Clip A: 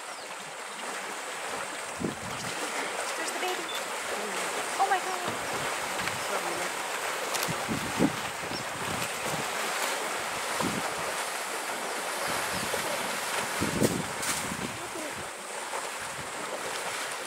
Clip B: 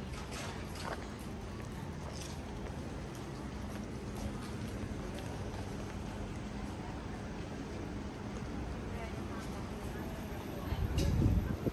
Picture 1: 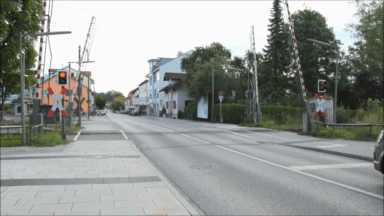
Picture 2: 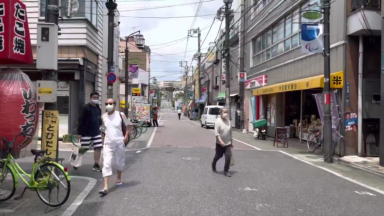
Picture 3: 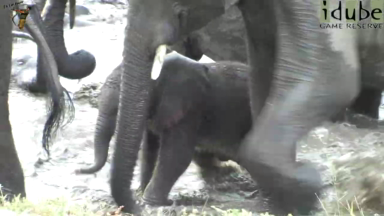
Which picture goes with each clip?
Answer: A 3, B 2